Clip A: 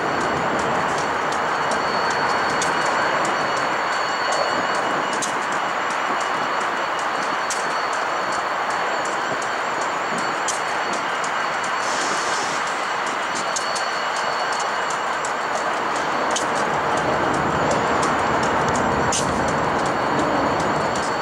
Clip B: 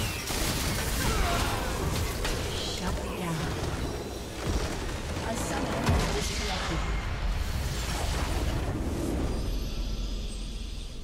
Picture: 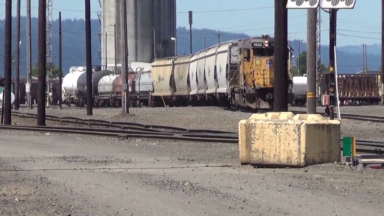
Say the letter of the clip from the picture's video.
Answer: A